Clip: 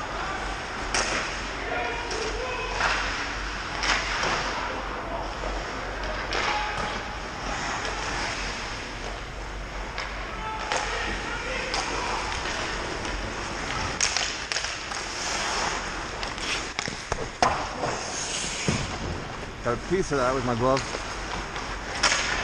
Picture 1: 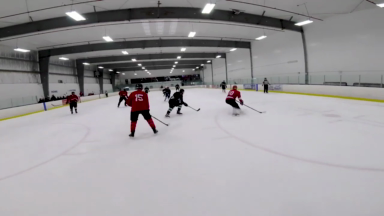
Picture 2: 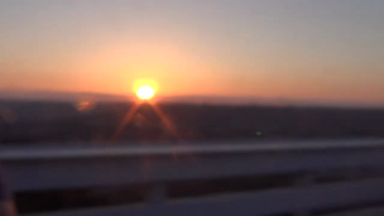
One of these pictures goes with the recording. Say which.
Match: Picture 1